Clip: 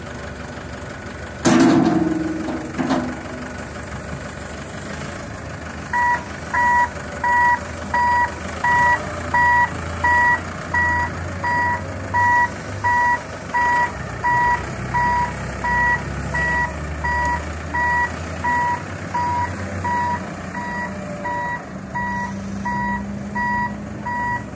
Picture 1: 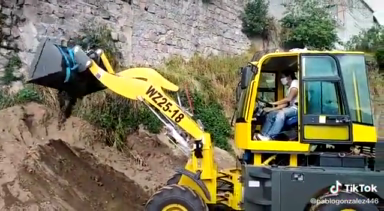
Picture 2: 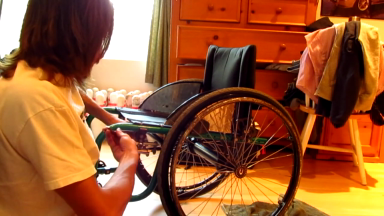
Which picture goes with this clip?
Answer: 1